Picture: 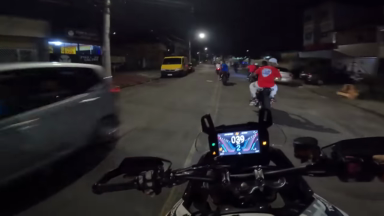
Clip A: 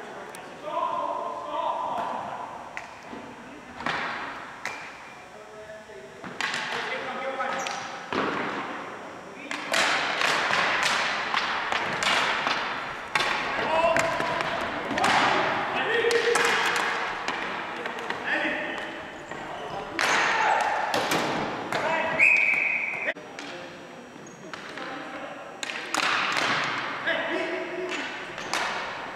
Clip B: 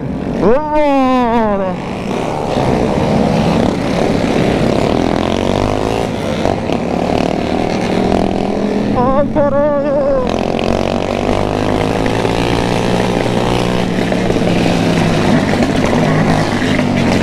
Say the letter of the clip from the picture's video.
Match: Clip B